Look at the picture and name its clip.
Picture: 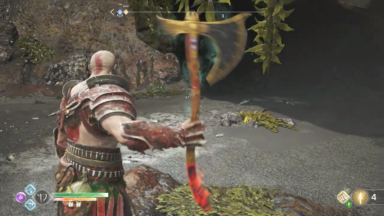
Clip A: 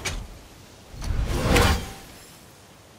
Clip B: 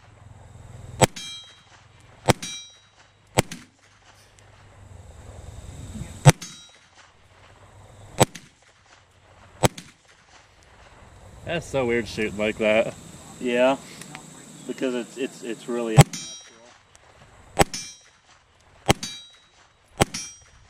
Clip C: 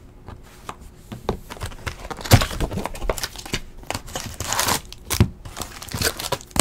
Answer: A